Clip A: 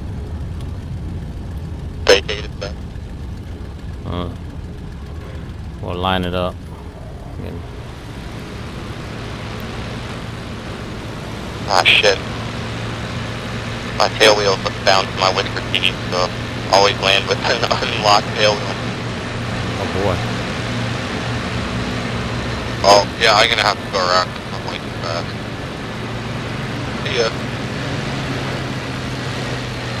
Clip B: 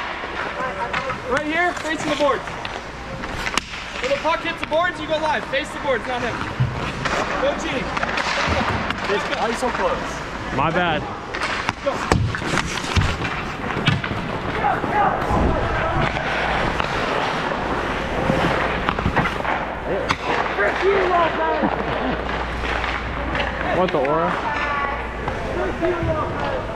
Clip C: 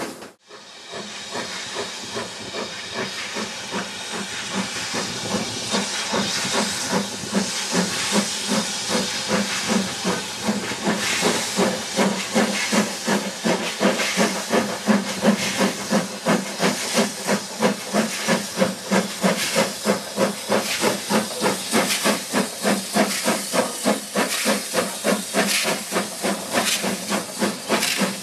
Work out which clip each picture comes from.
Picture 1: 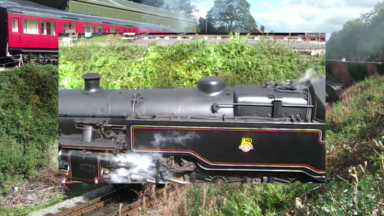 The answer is C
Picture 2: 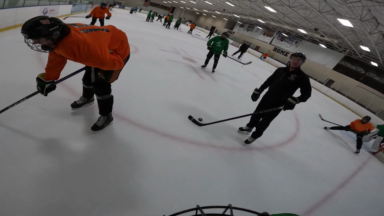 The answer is B